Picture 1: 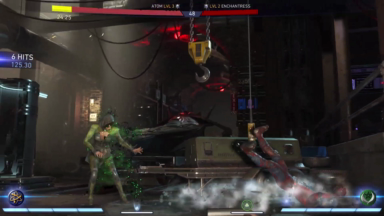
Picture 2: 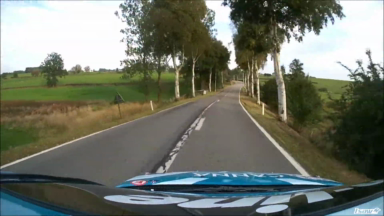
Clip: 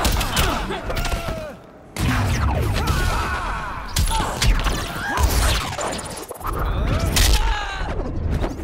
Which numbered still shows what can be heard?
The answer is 1